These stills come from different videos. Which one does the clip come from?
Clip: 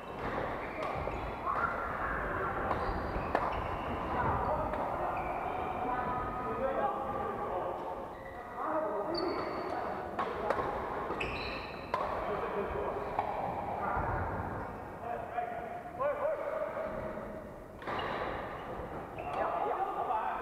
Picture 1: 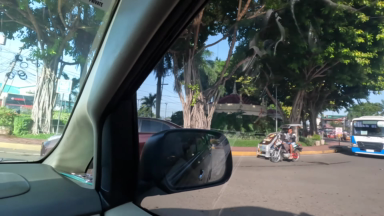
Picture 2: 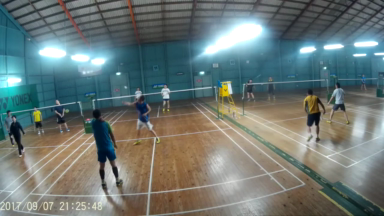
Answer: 2